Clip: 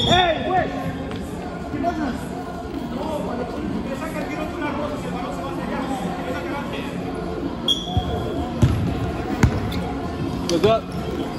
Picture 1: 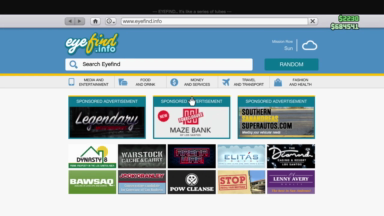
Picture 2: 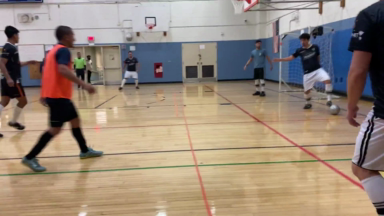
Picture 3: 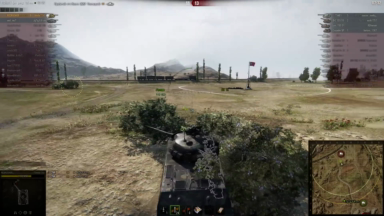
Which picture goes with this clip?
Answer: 2